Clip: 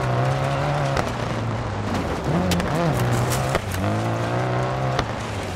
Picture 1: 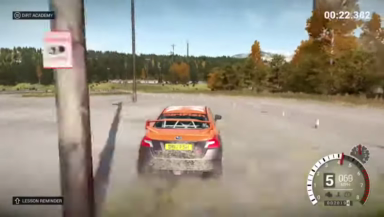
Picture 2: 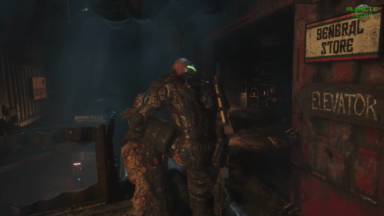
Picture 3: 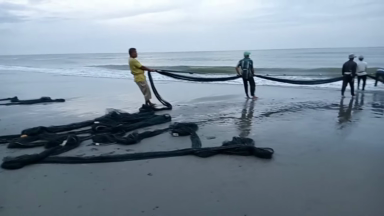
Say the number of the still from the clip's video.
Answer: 1